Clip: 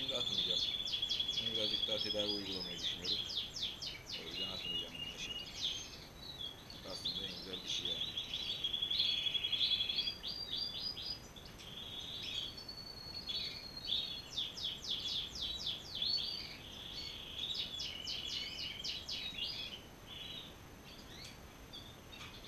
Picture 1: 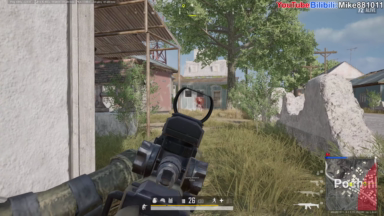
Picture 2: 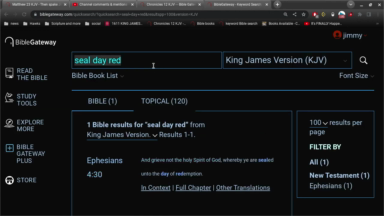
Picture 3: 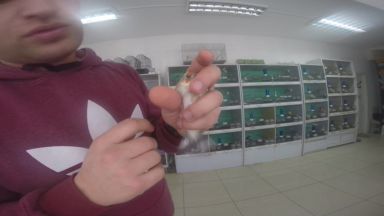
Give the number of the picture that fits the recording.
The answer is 3